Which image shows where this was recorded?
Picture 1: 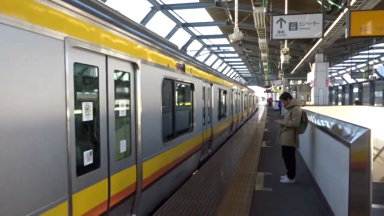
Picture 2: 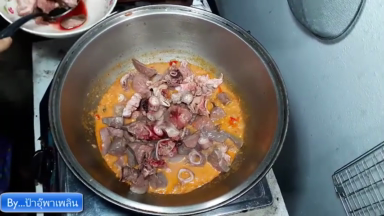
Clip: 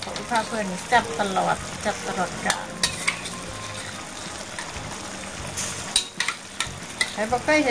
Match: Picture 2